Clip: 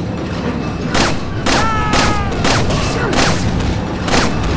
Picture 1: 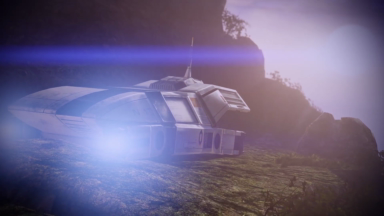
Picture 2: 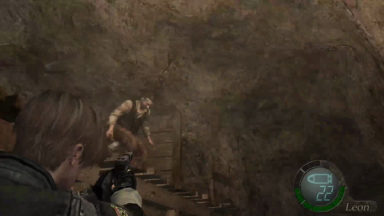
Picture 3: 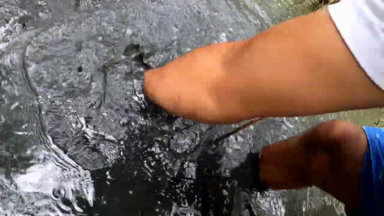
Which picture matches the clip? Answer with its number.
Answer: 2